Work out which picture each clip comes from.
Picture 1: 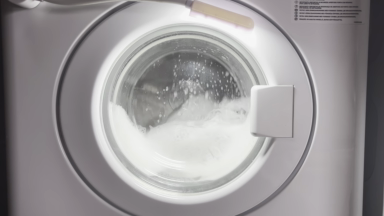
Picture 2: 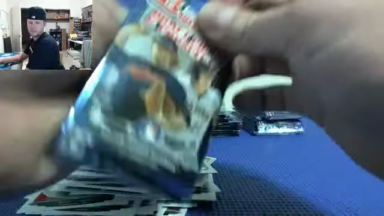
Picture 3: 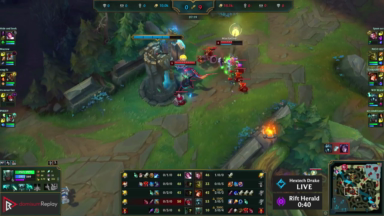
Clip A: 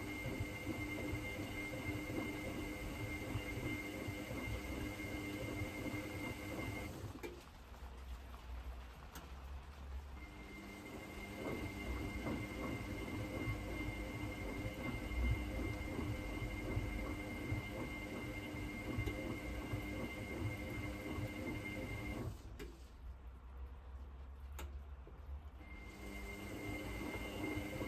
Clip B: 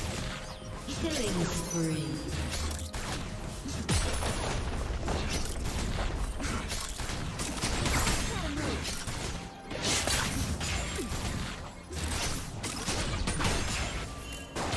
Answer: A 1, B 3